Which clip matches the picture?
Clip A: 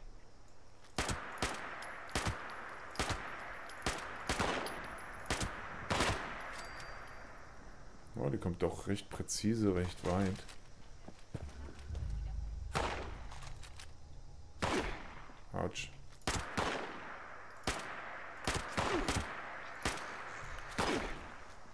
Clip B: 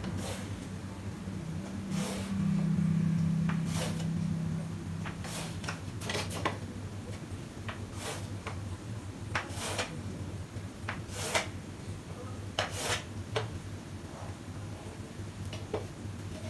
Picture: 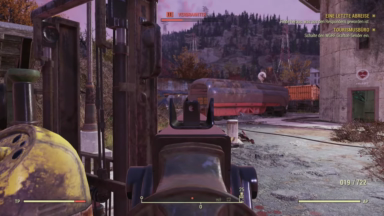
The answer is A